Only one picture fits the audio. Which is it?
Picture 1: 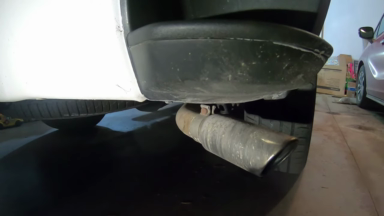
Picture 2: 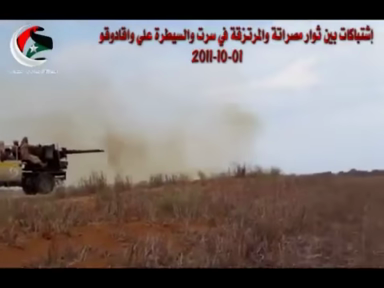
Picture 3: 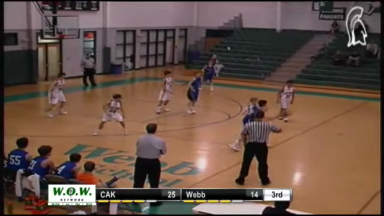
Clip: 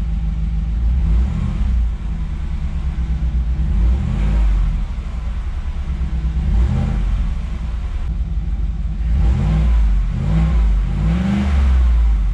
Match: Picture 1